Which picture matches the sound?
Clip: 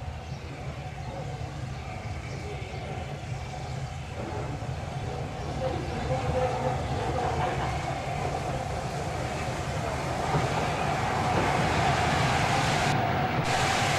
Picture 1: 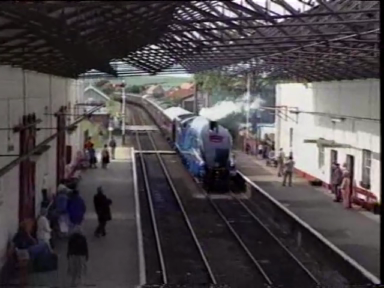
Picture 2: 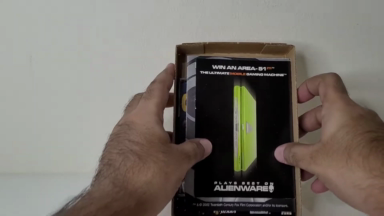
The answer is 1